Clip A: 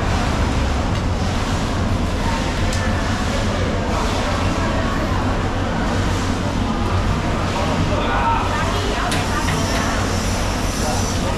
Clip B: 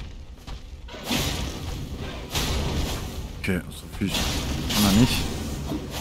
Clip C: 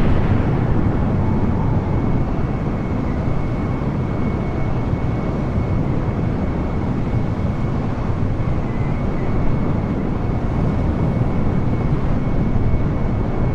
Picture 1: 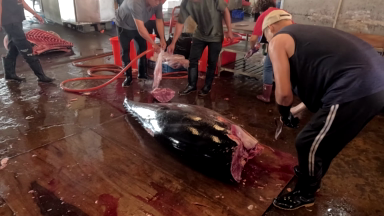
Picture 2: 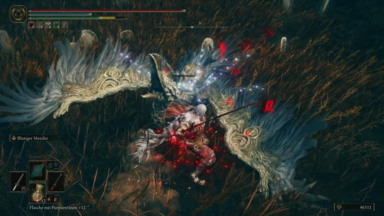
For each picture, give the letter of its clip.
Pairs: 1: A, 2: B